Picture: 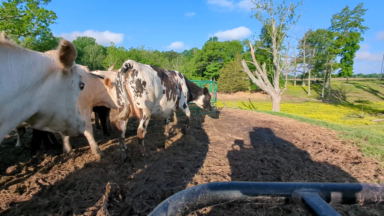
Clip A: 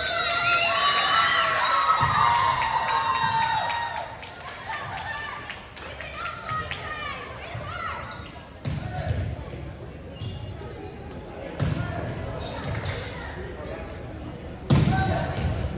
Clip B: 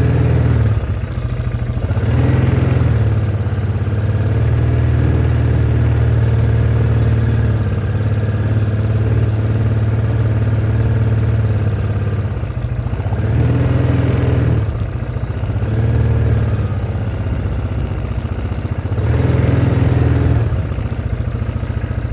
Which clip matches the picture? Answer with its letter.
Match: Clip B